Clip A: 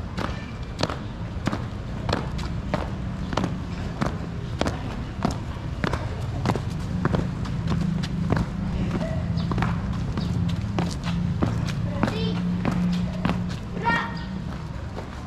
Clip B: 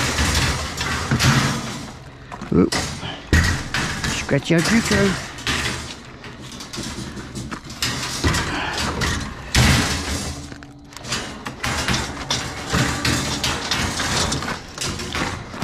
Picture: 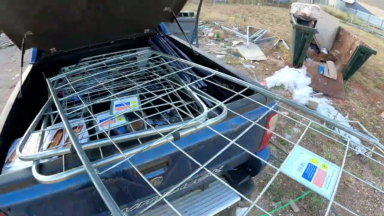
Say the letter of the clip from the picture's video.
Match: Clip B